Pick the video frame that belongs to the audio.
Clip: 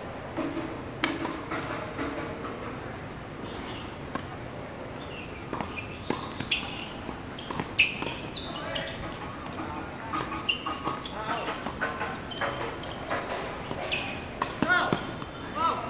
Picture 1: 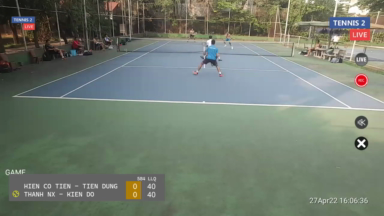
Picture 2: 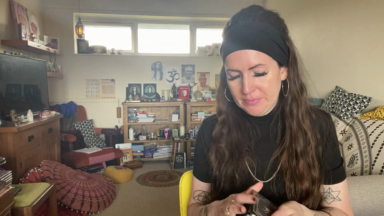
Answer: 1